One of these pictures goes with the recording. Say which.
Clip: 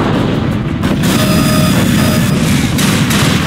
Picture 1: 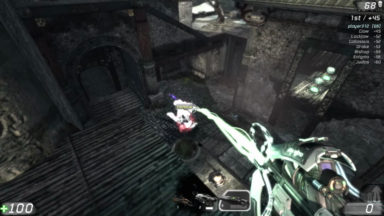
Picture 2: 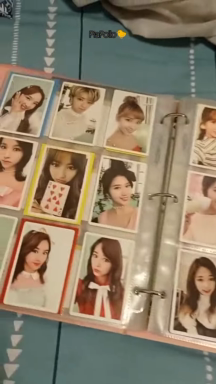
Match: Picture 1